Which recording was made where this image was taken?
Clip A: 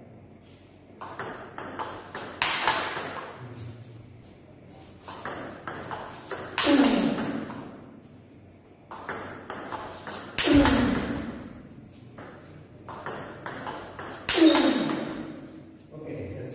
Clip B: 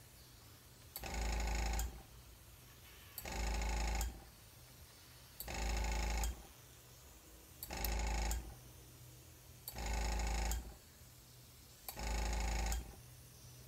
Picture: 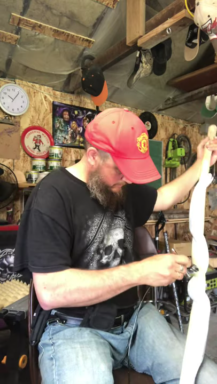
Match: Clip B